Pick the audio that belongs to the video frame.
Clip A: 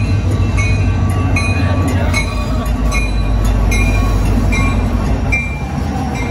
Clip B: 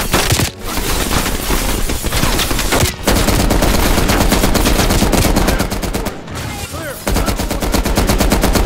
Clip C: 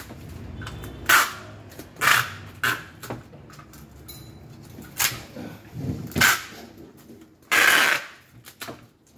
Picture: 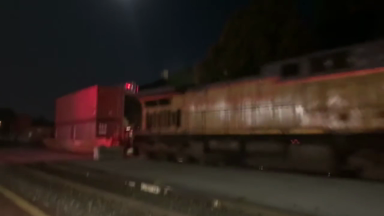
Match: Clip A